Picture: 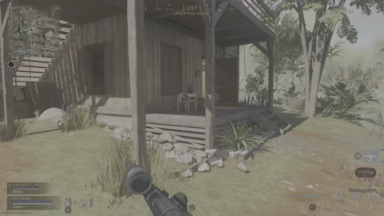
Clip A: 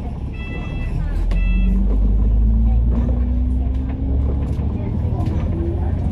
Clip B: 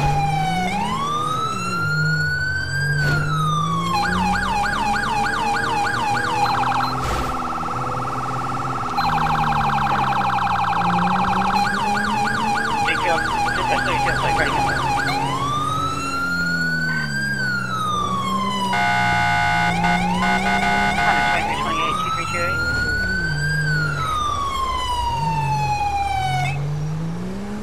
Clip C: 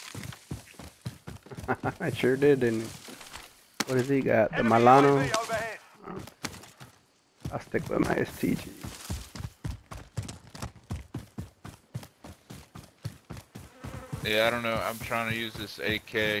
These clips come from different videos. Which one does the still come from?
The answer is C